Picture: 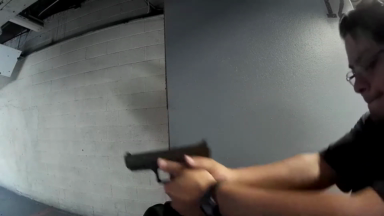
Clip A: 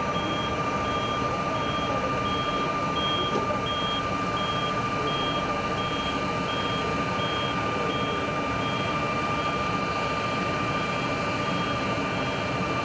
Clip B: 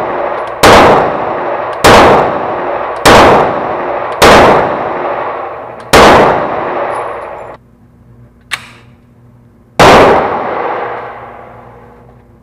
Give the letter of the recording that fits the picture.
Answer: B